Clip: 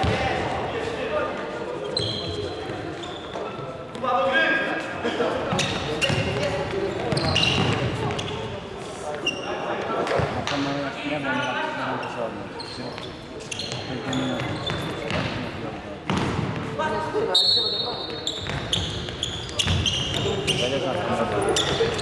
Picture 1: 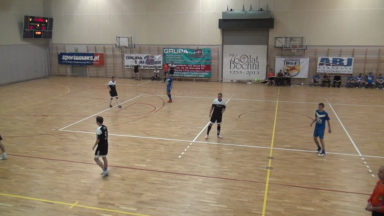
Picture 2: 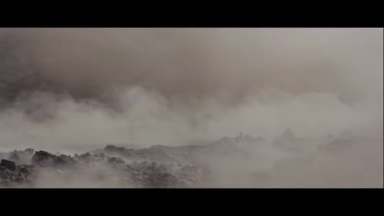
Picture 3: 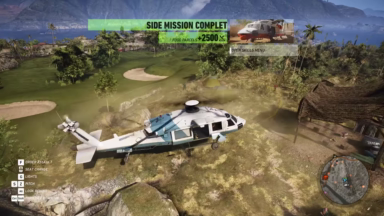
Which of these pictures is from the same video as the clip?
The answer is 1